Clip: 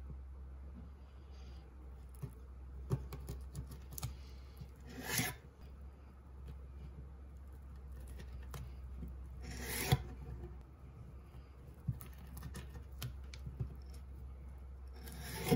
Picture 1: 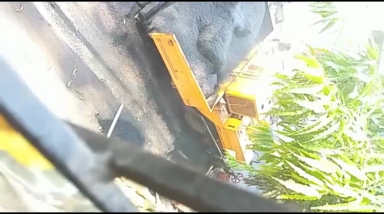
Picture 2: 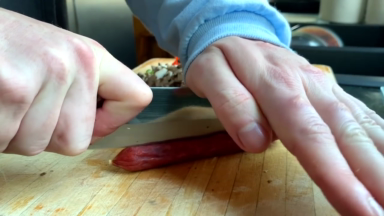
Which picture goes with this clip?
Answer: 2